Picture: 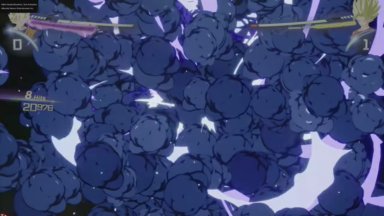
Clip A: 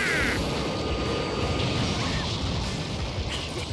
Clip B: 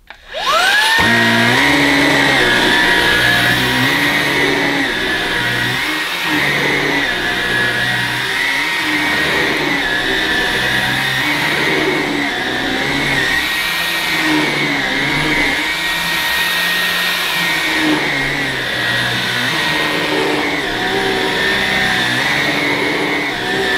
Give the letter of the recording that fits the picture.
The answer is A